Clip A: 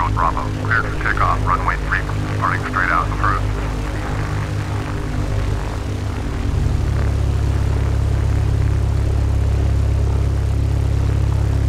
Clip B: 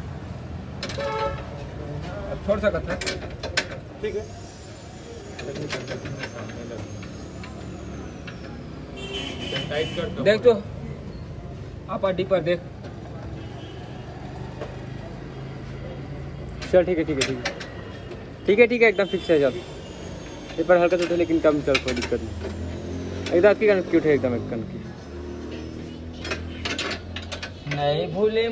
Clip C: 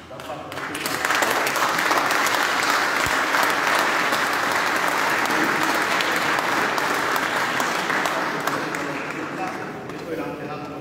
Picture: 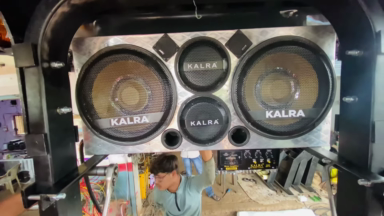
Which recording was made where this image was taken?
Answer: B